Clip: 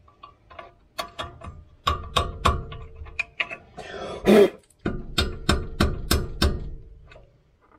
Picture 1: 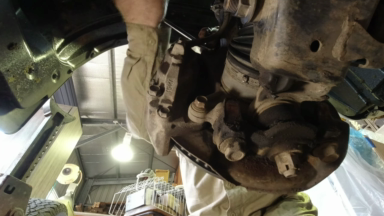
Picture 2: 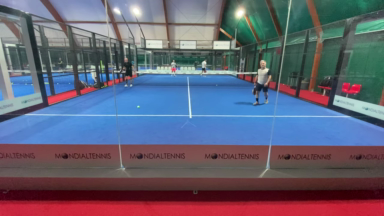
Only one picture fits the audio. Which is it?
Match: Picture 1